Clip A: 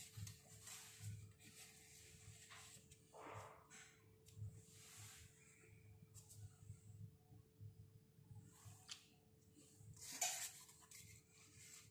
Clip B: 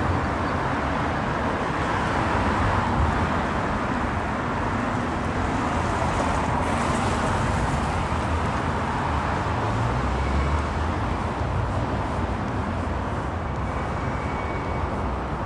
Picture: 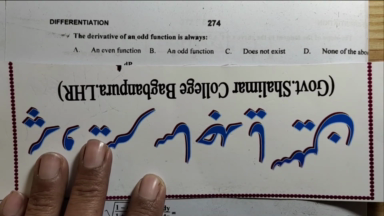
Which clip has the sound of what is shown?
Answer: A